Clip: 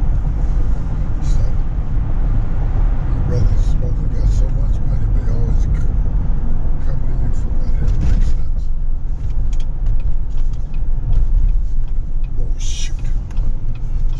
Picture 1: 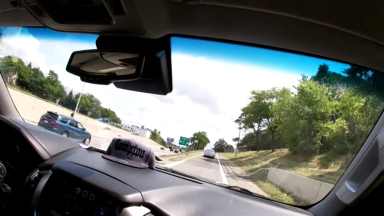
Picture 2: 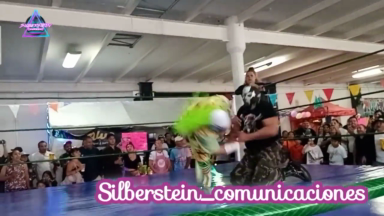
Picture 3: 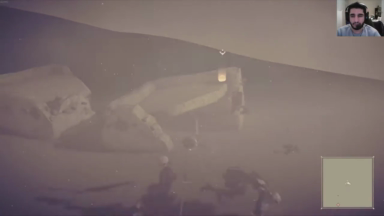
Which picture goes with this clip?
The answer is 1